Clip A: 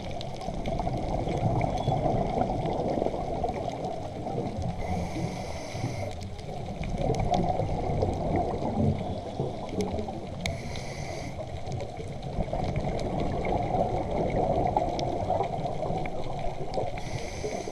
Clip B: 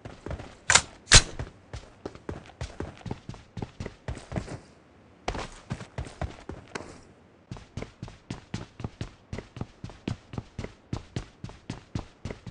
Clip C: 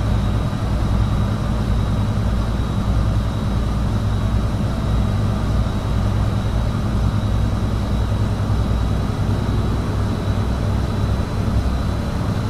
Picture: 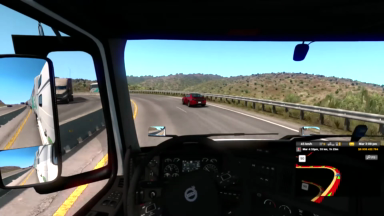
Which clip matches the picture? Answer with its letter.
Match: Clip C